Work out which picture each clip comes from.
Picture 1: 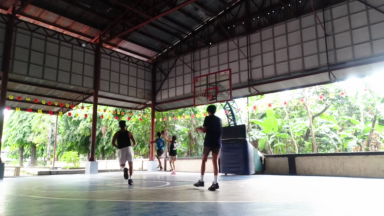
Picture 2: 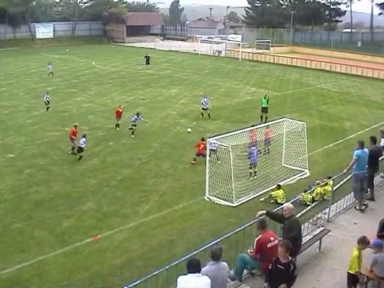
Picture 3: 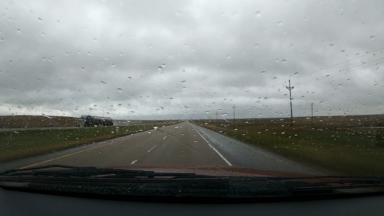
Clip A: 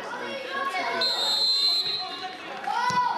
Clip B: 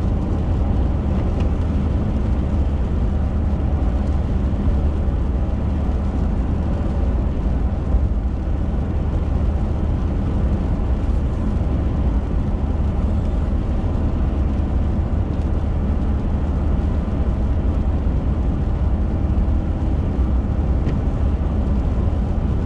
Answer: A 2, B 3